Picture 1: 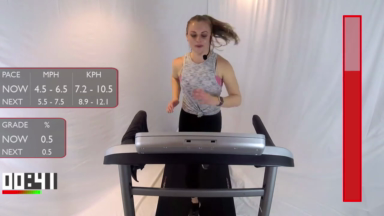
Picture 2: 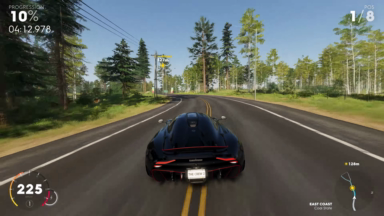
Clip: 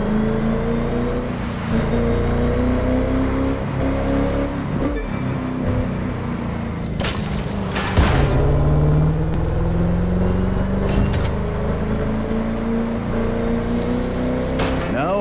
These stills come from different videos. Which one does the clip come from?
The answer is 2